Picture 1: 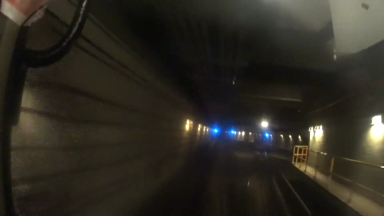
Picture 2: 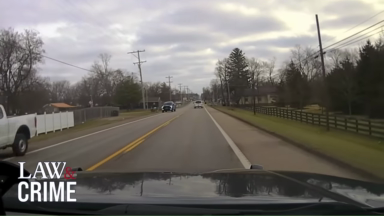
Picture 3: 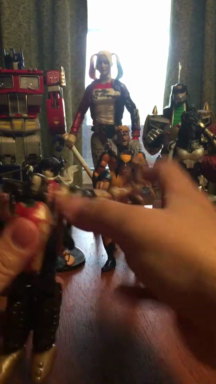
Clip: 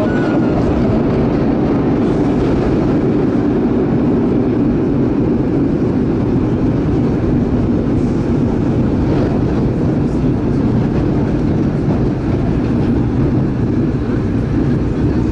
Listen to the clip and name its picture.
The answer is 1